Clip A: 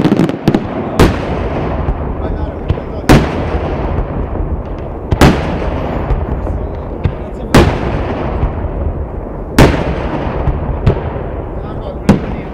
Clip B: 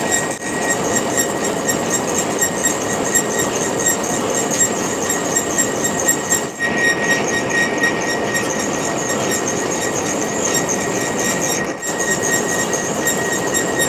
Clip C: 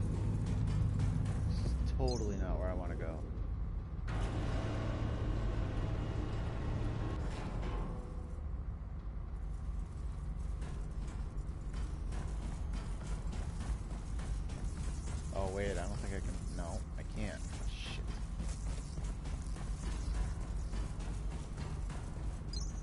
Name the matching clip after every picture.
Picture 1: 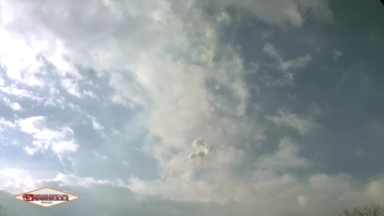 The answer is A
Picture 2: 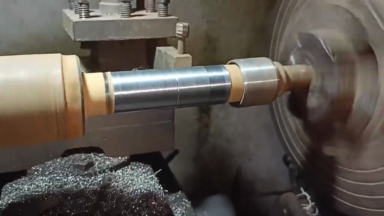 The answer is B